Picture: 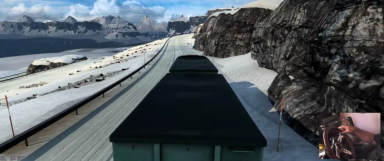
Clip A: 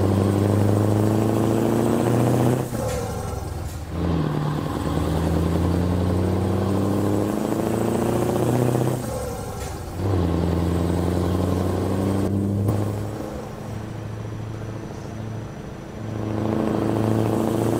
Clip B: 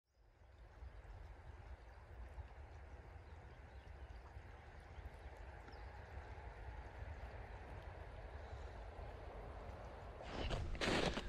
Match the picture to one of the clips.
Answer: A